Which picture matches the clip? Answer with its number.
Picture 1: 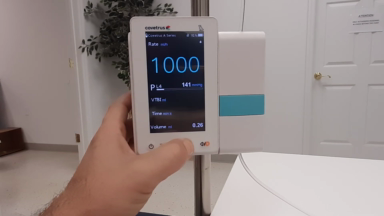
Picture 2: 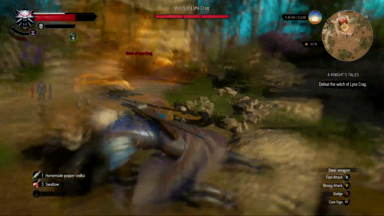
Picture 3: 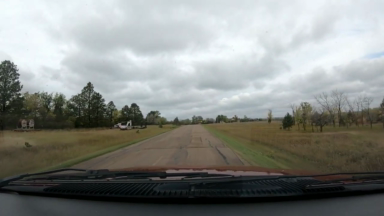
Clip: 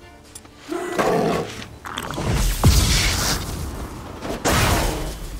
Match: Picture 2